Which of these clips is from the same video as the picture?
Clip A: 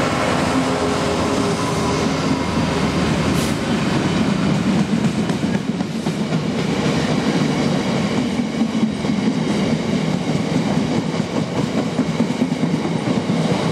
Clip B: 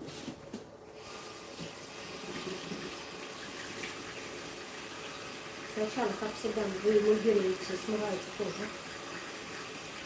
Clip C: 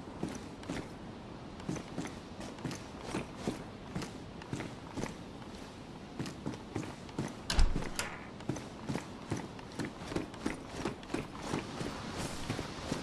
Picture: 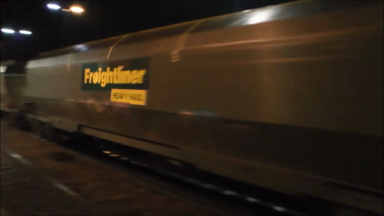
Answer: A